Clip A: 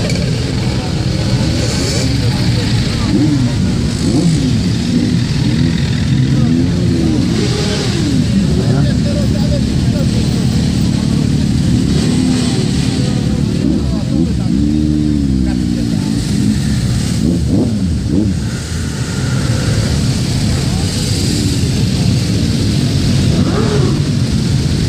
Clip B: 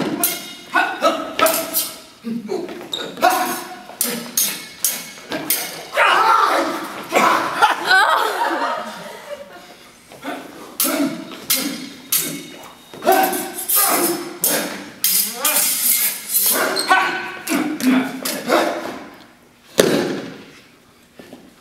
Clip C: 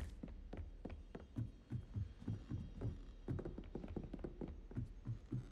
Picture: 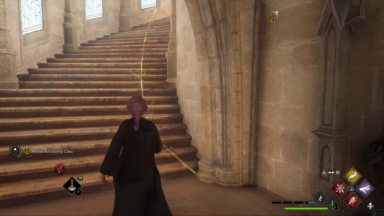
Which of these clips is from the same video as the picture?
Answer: C